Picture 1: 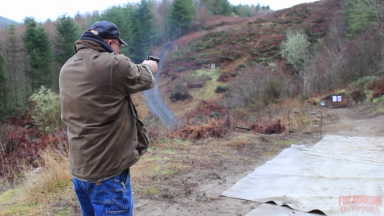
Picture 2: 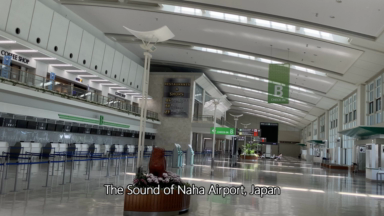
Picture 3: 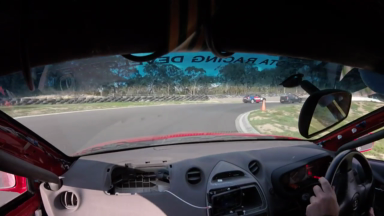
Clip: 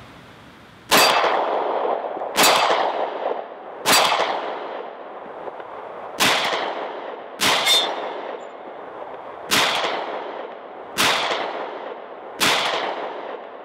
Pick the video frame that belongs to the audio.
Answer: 1